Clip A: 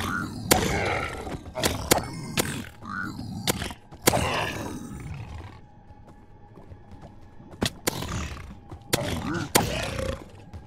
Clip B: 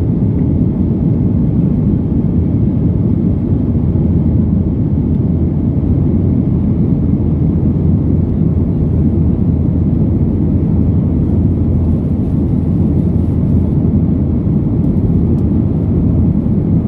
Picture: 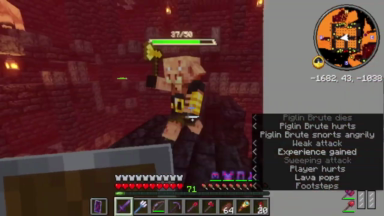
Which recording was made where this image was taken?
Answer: A